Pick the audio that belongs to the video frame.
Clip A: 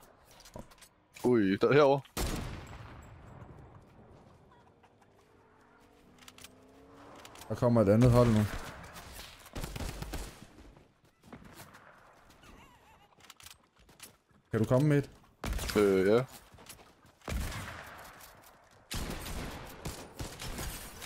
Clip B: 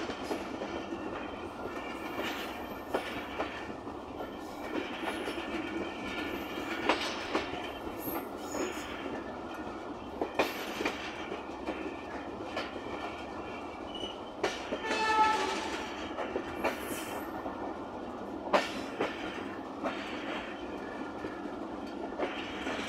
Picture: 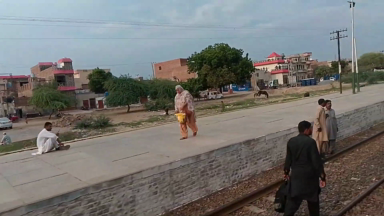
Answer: B